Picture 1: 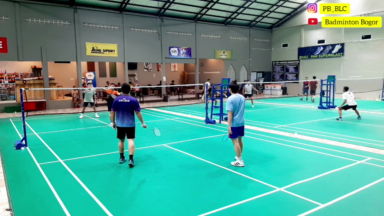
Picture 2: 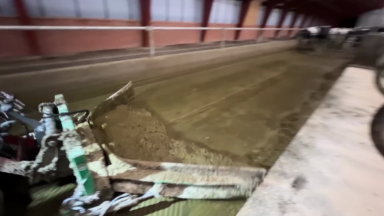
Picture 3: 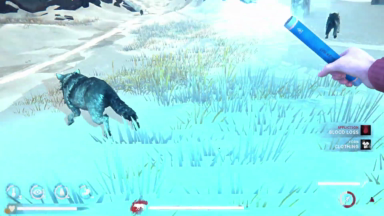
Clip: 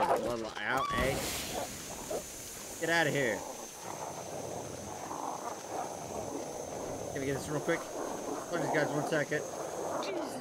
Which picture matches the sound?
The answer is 3